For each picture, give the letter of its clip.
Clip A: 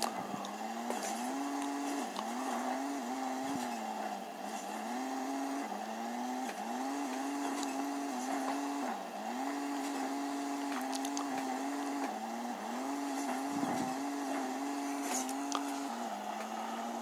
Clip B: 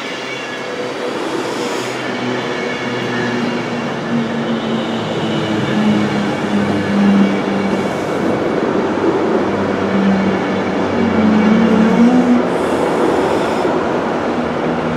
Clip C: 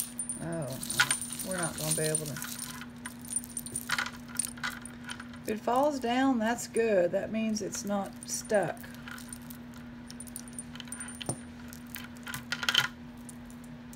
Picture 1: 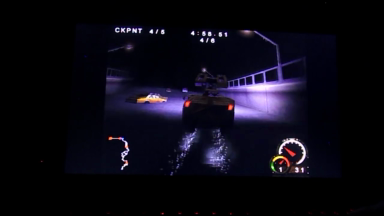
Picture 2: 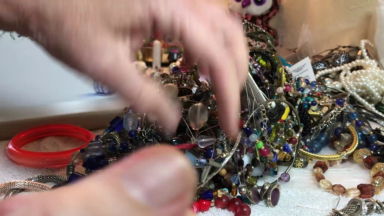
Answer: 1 A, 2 C